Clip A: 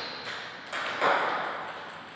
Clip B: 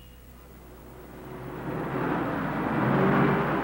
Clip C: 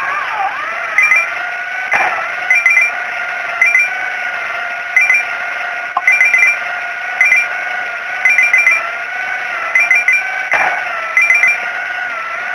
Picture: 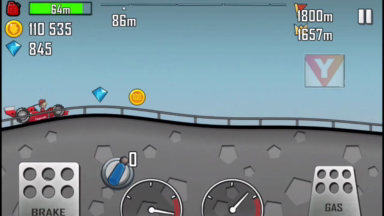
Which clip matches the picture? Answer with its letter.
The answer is C